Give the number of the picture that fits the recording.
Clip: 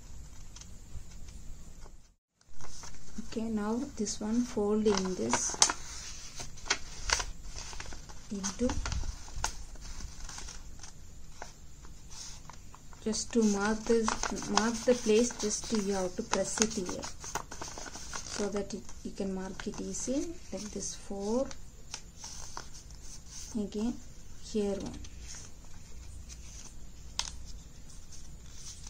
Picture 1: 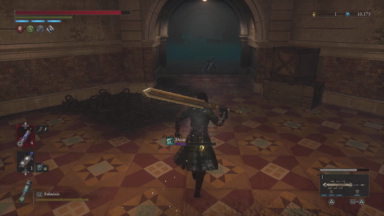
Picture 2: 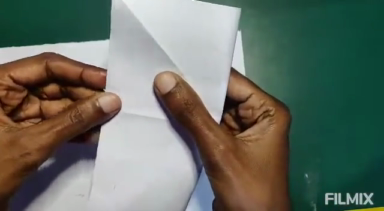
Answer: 2